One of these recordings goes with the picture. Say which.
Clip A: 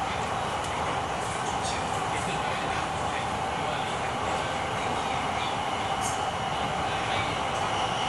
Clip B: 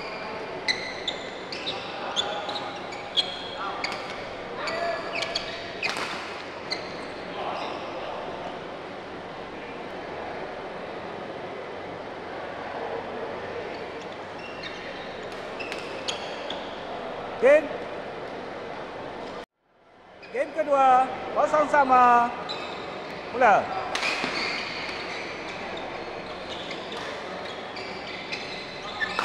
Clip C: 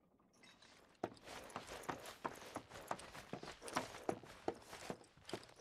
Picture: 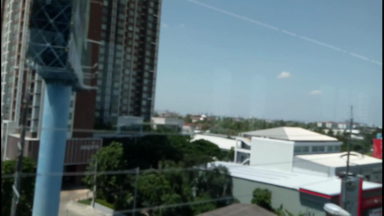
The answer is A